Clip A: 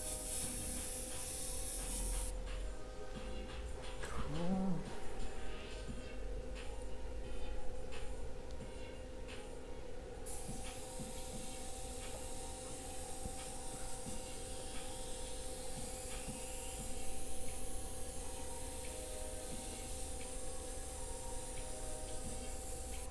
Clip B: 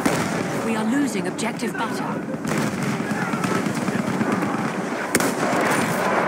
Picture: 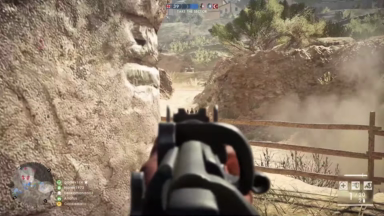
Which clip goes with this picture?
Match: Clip B